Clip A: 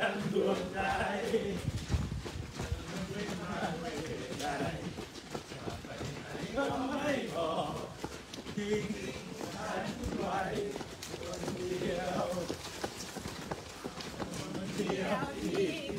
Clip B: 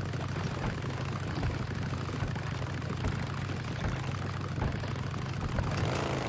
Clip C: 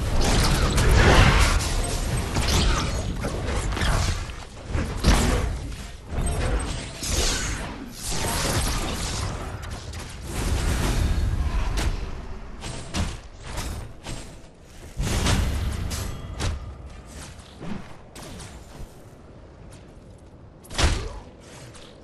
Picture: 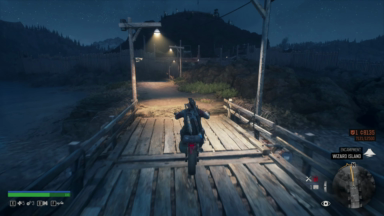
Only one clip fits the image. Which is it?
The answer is B